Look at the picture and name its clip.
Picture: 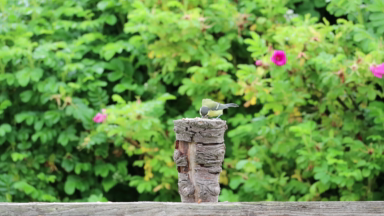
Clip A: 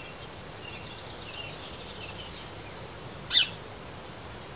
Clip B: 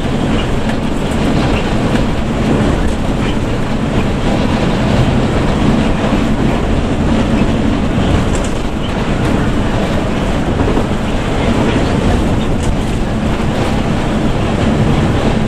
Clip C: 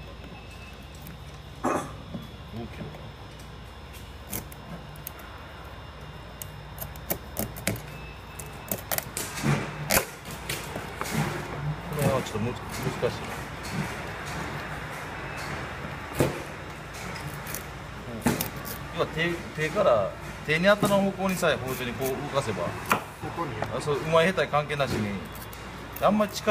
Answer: A